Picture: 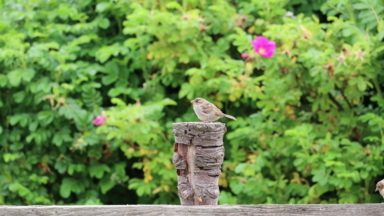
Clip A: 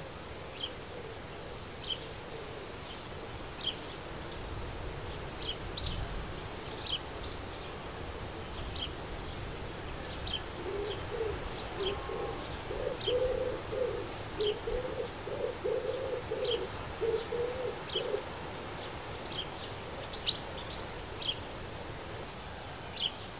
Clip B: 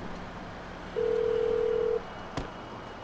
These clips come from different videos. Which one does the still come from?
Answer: A